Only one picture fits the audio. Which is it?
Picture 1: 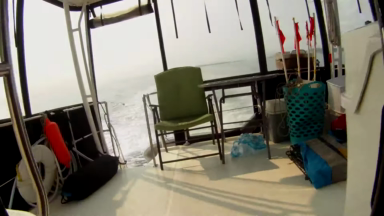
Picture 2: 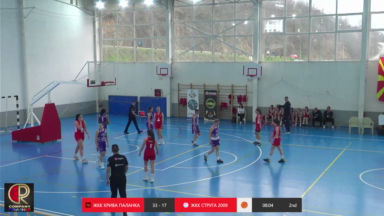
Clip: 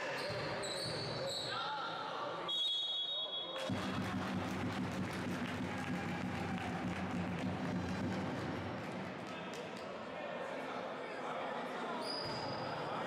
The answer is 2